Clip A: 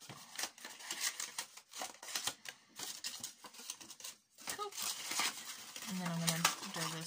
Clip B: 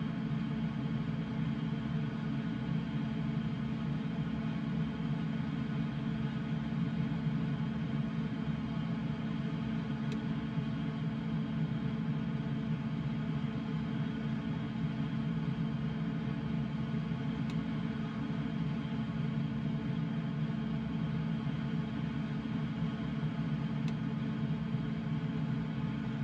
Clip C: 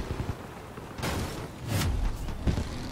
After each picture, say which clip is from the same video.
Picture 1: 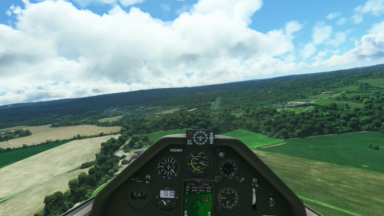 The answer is B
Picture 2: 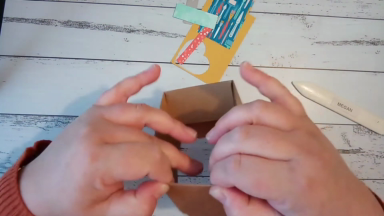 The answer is A